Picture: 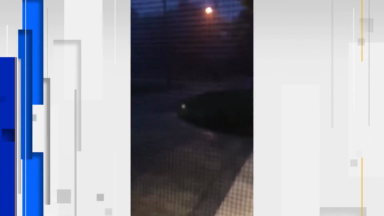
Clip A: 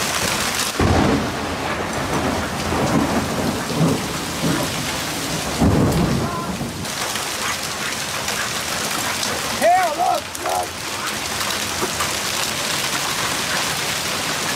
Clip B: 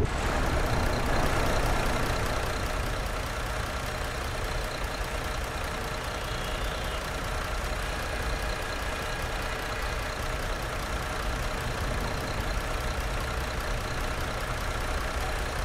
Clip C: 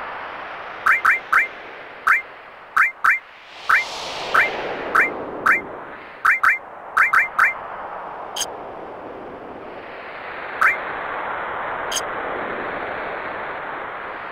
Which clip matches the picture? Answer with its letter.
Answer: A